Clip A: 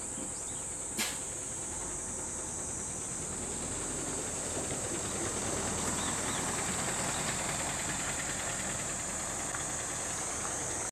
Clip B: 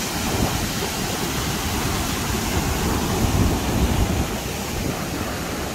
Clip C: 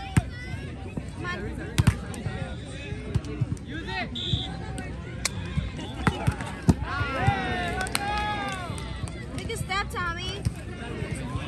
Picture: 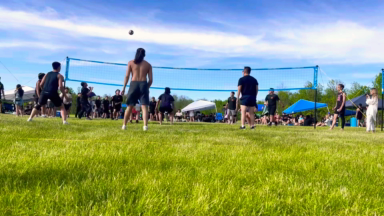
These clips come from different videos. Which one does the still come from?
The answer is C